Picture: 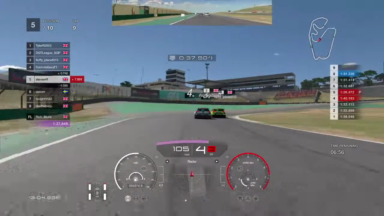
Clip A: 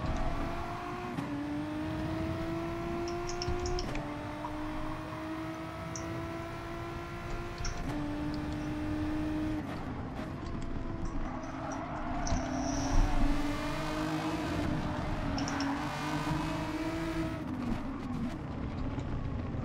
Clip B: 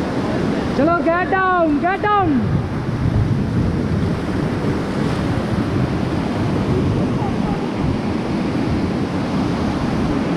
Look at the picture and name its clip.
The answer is A